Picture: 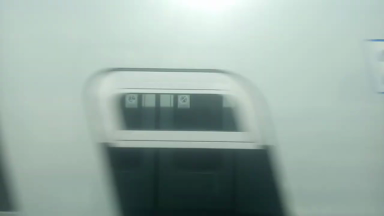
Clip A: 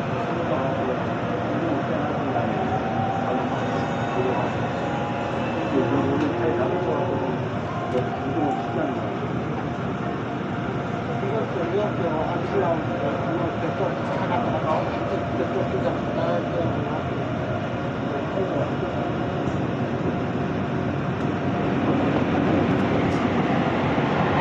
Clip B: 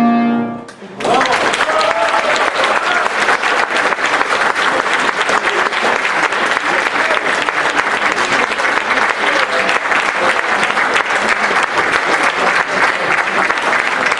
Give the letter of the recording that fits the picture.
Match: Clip A